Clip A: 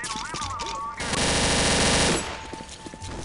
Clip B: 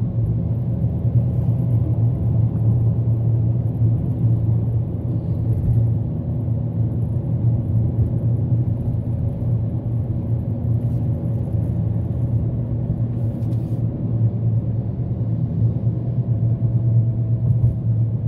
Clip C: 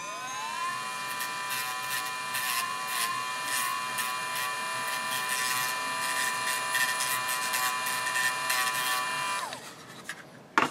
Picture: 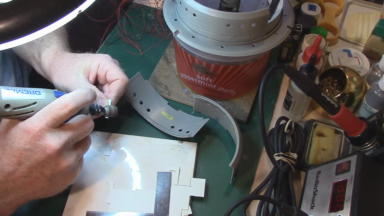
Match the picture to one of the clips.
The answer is C